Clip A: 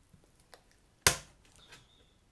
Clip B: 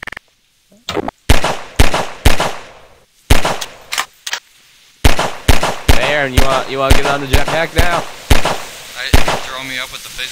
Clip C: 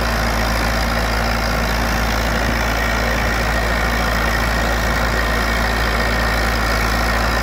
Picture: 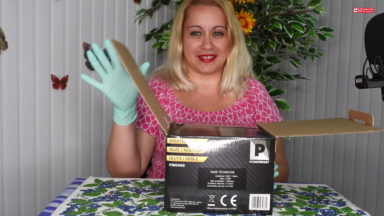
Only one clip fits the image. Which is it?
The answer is A